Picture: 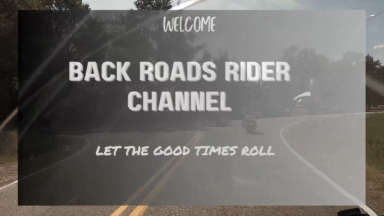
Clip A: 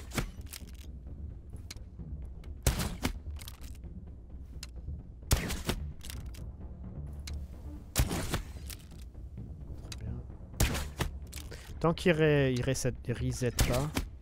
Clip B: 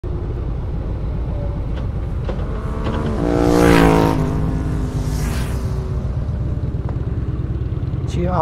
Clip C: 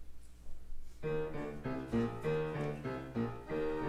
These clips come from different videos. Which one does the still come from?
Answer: B